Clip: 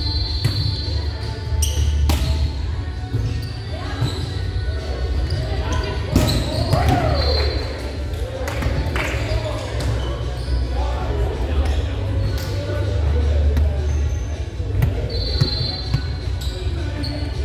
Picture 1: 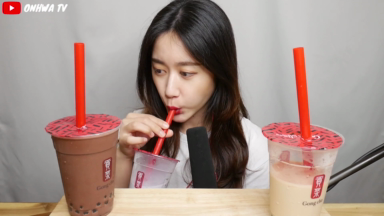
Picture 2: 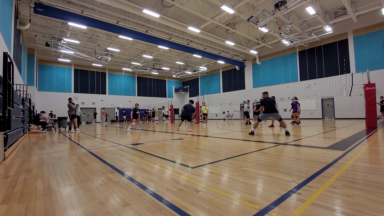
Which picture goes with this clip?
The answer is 2